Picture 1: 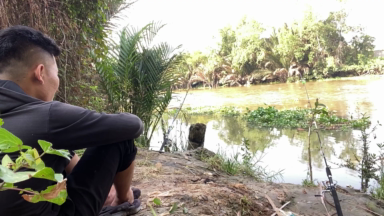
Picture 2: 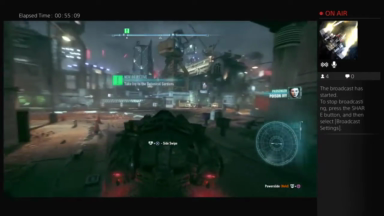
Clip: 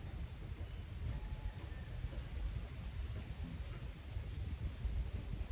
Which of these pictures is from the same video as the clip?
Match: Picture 1